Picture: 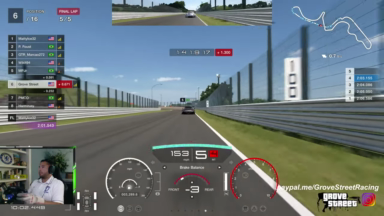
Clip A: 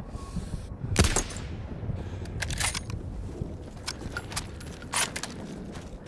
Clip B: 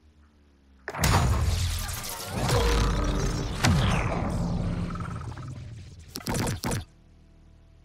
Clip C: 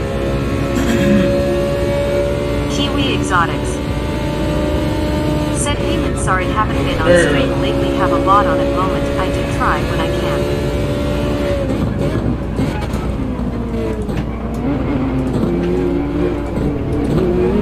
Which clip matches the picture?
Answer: C